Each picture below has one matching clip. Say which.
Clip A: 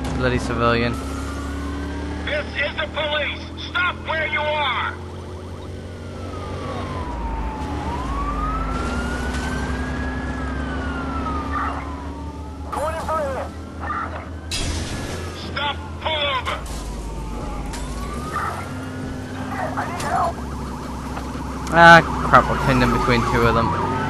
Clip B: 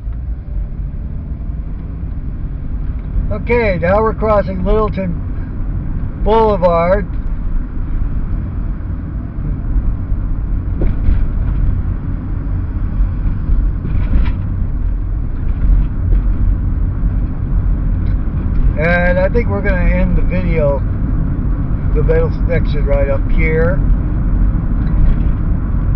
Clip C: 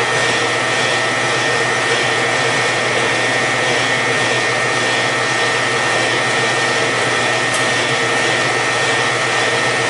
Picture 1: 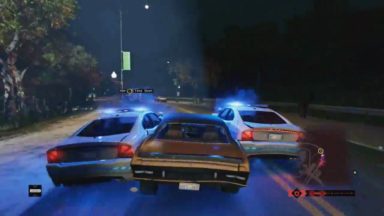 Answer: A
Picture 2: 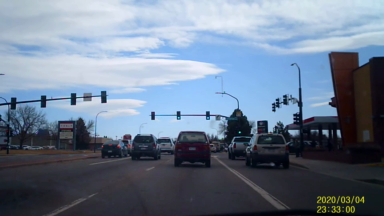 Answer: B